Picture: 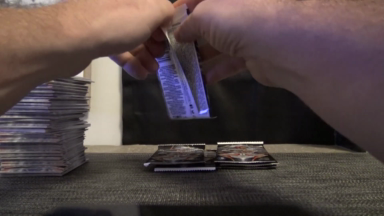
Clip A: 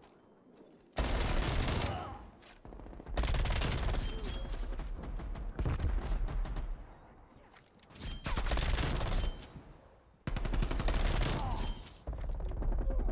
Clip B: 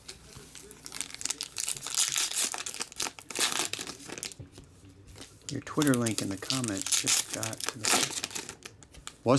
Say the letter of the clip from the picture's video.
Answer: B